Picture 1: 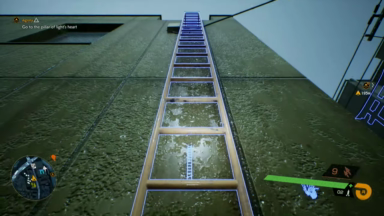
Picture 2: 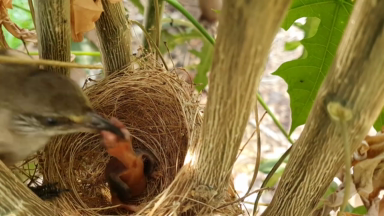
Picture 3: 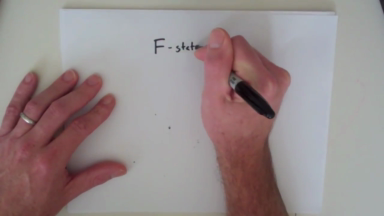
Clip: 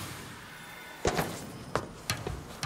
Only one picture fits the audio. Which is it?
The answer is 1